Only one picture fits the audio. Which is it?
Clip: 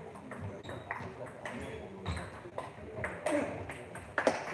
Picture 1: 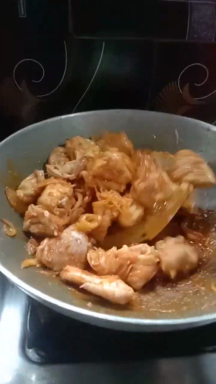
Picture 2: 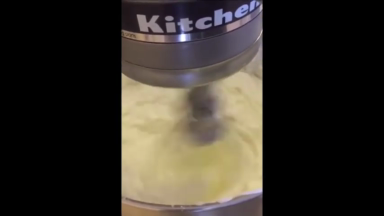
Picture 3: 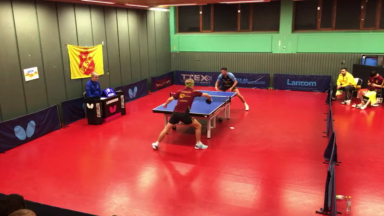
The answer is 3